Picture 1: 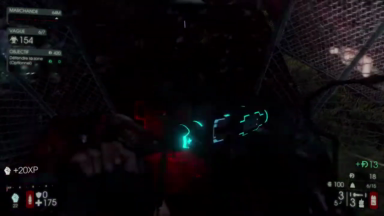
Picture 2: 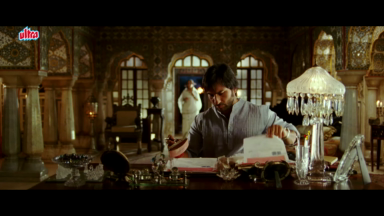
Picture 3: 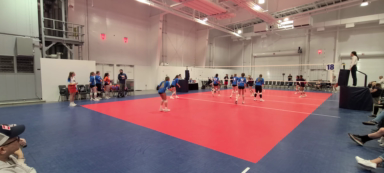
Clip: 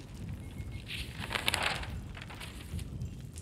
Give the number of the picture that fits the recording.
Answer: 2